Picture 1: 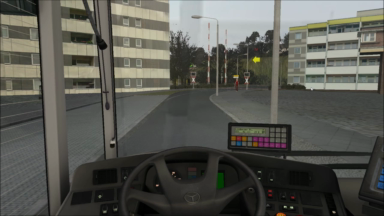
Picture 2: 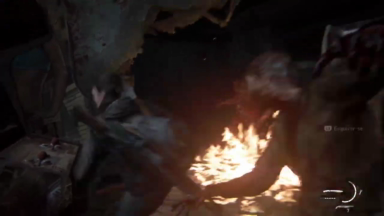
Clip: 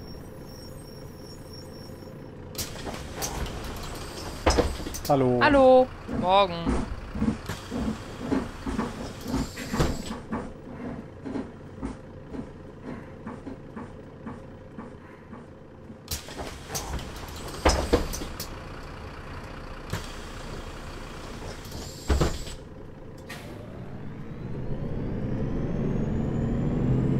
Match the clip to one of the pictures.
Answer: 1